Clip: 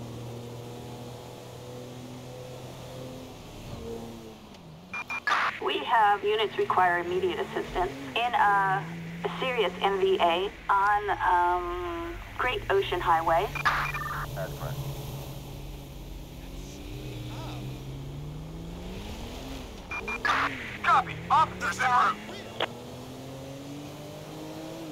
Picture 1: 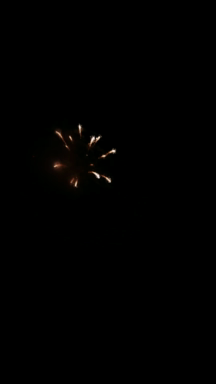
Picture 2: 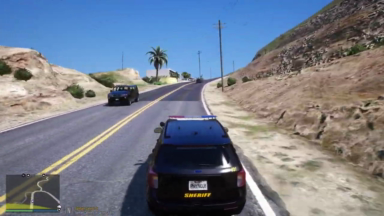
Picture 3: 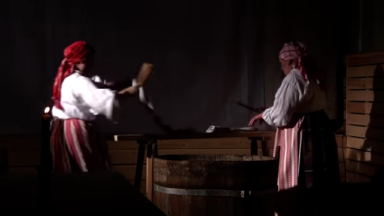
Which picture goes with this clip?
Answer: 2